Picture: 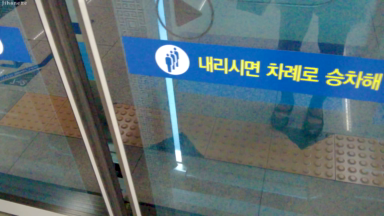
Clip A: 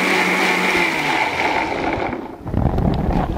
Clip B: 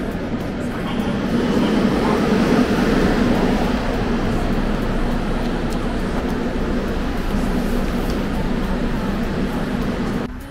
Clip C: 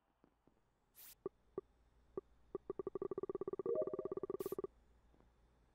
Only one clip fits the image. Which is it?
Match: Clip B